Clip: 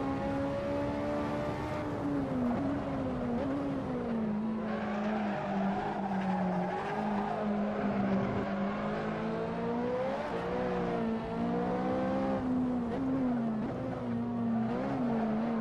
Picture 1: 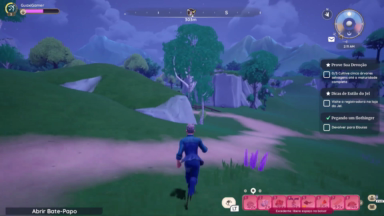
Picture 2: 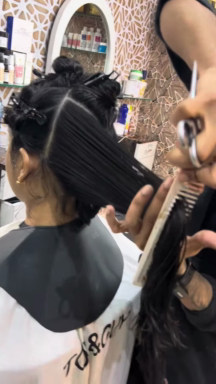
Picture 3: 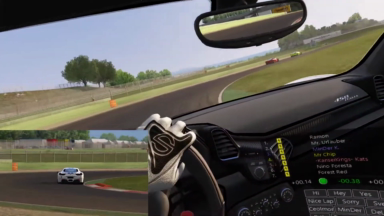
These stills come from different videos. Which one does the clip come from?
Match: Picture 3